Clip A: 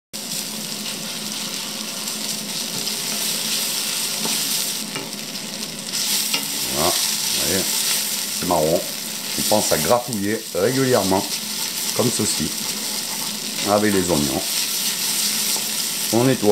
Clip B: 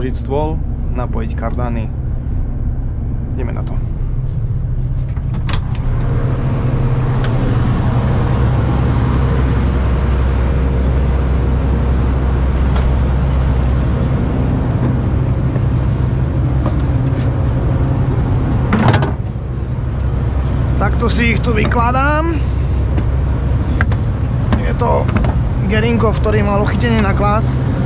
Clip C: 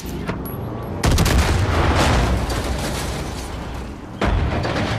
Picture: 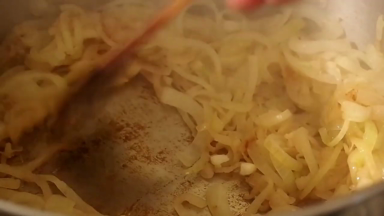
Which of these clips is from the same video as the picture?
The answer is A